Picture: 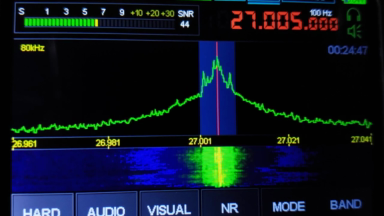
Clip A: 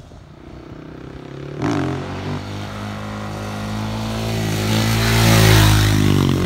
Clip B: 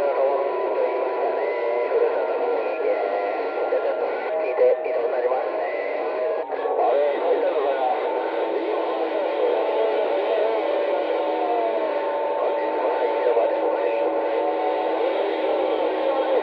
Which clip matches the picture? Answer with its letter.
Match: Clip B